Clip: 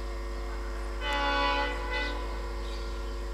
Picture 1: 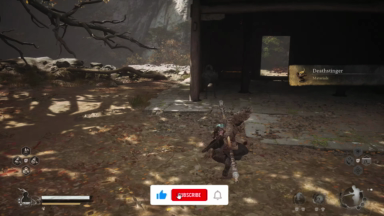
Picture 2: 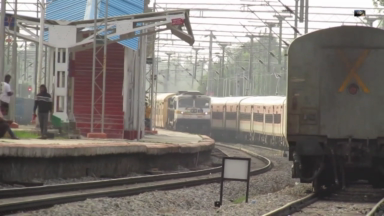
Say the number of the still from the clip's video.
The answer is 2